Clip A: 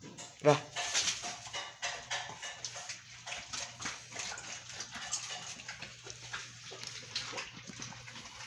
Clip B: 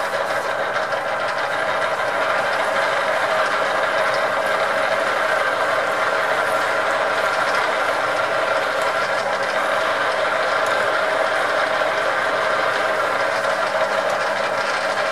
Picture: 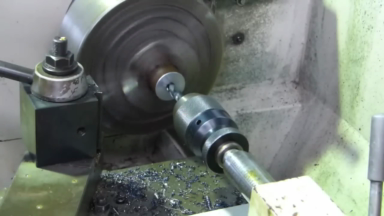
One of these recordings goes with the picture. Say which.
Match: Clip B